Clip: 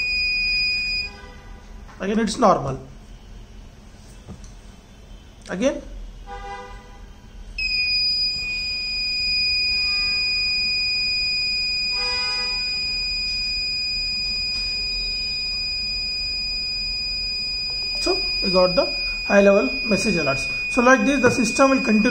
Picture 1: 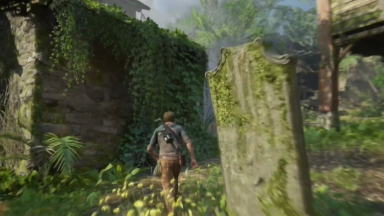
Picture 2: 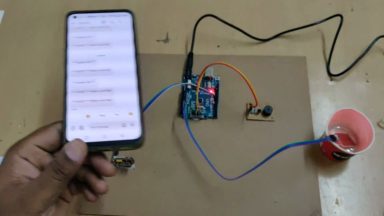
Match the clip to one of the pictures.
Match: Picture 2